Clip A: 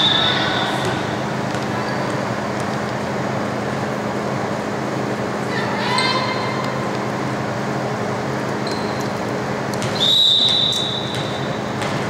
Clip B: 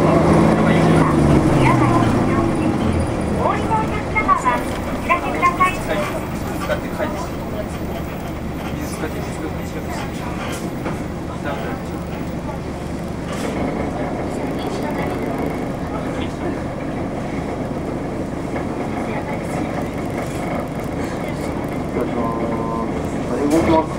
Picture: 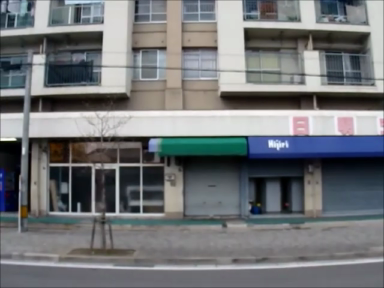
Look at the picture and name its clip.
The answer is B